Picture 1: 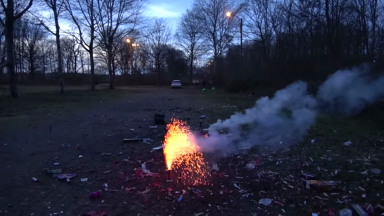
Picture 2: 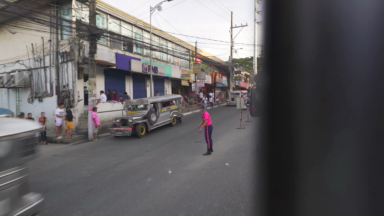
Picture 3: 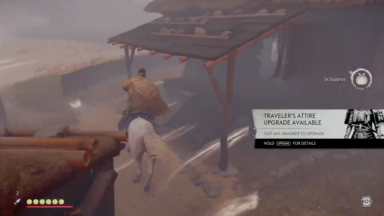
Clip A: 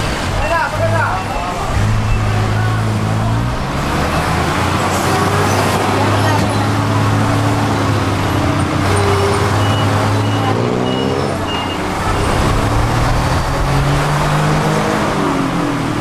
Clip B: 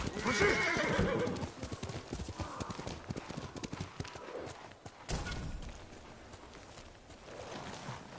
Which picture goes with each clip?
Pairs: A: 2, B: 3